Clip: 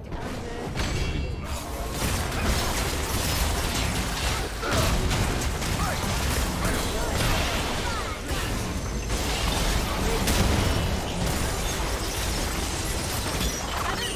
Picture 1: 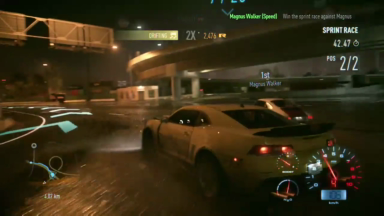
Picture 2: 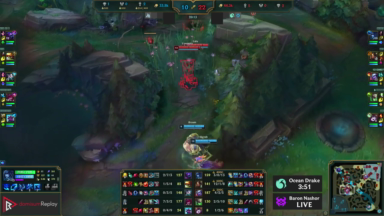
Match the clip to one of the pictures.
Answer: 2